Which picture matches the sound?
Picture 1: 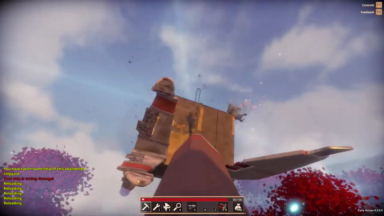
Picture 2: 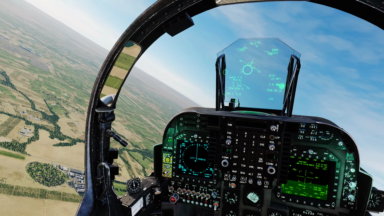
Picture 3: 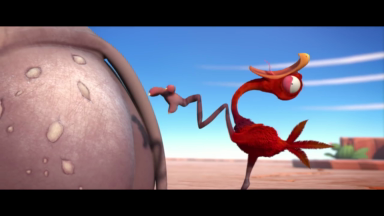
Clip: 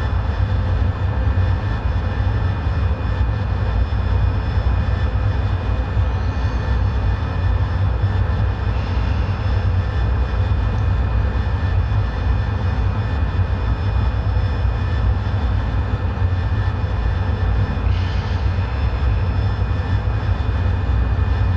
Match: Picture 2